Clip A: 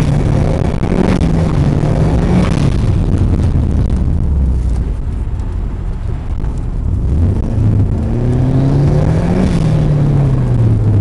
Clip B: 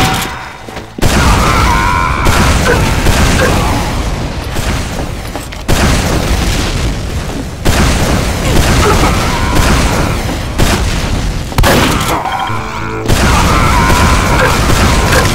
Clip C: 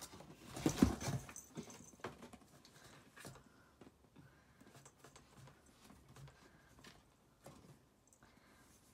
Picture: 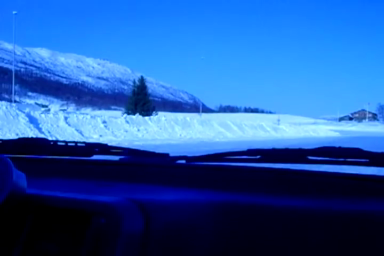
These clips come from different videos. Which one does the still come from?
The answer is A